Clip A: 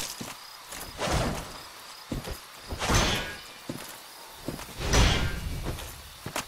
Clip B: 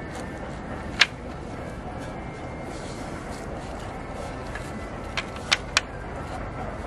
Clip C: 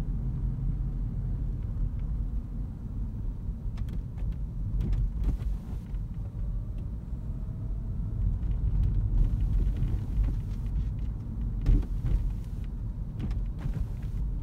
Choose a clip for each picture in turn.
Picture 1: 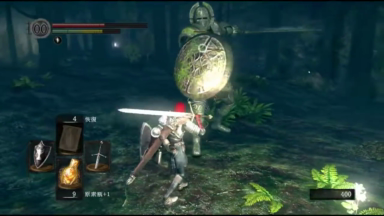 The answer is A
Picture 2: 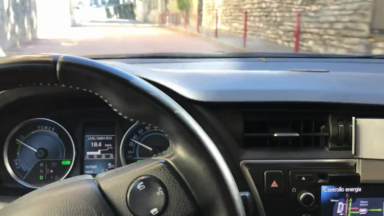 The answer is C